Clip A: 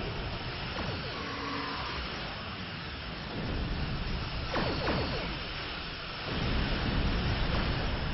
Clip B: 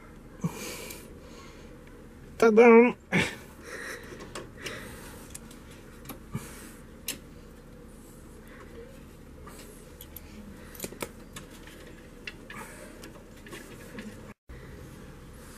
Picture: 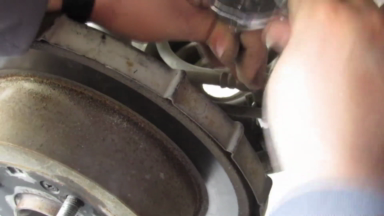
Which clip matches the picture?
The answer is B